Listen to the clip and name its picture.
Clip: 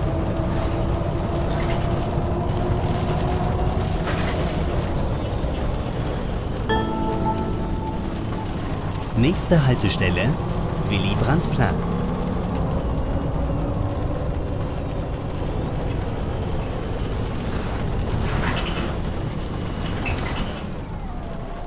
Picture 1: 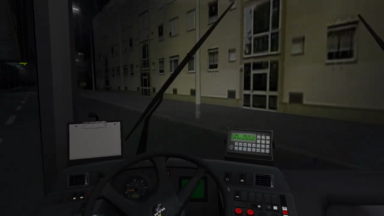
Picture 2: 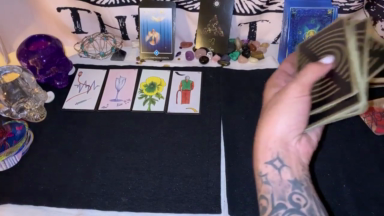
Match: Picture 1